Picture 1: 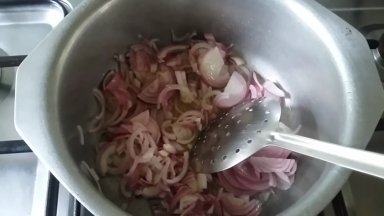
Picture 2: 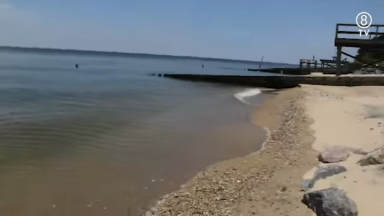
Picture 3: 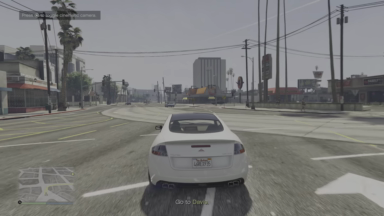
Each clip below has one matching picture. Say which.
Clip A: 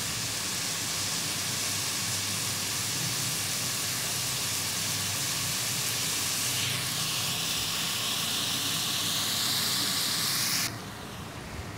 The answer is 1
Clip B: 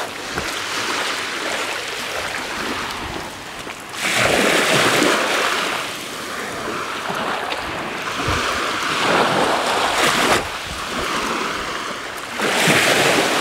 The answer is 2